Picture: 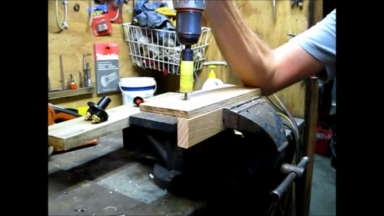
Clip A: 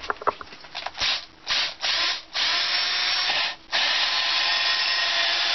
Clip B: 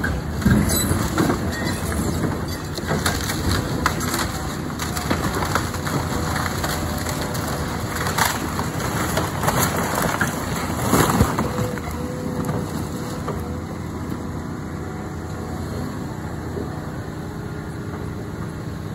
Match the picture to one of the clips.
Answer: A